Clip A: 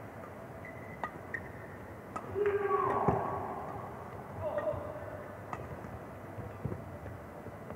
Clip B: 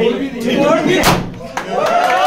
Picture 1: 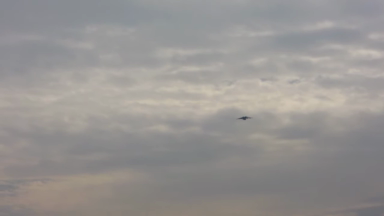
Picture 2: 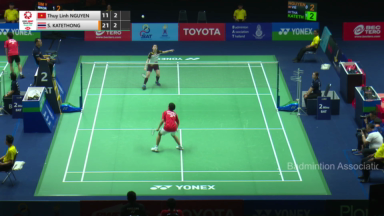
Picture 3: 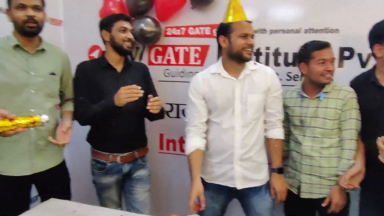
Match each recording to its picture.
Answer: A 2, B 3